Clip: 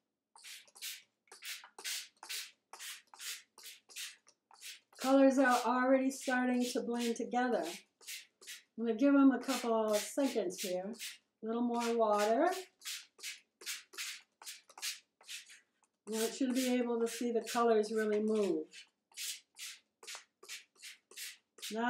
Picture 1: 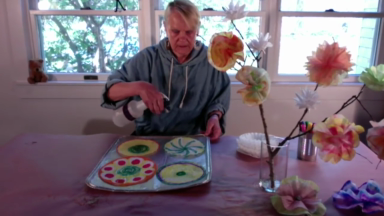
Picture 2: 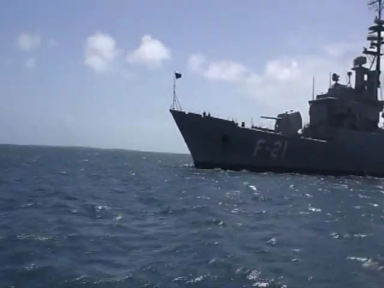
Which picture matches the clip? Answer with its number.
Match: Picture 1